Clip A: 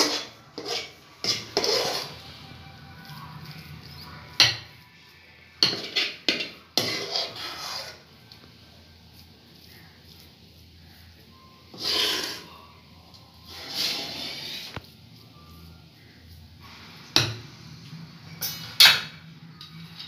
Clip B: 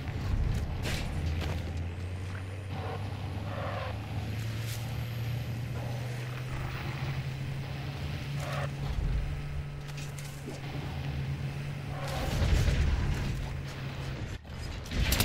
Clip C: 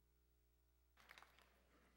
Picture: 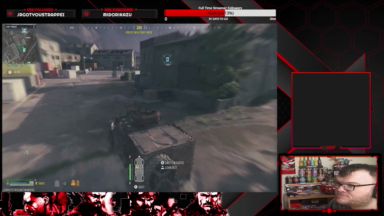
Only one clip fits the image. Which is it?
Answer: B